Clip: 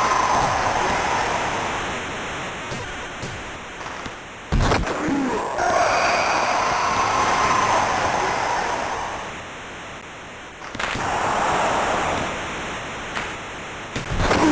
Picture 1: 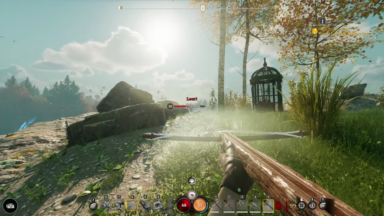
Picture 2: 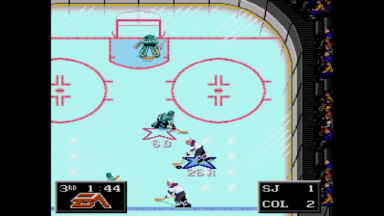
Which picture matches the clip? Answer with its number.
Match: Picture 2